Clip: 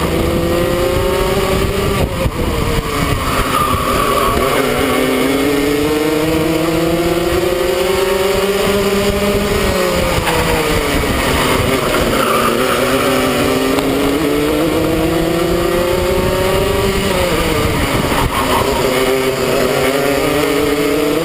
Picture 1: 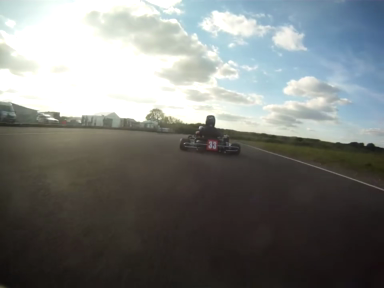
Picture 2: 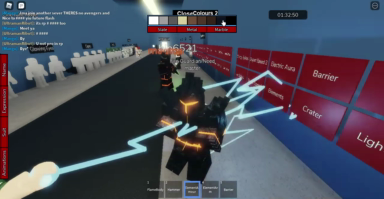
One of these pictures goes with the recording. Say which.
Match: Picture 1